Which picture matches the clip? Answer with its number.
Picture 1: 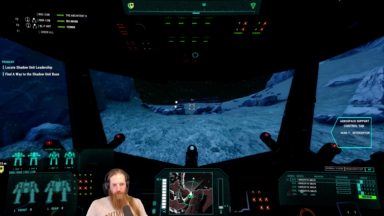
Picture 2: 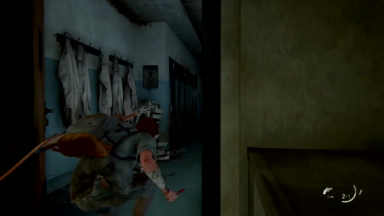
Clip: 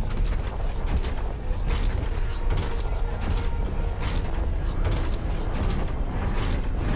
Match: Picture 1